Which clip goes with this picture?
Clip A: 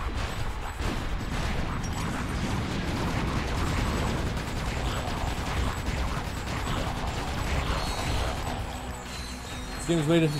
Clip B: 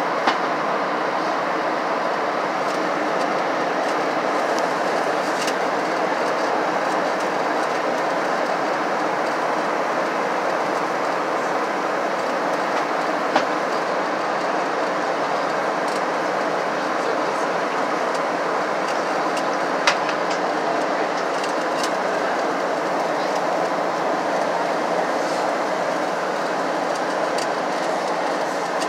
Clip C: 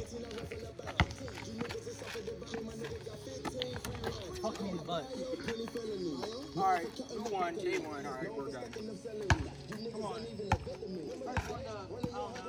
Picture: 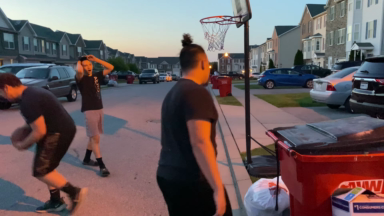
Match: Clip C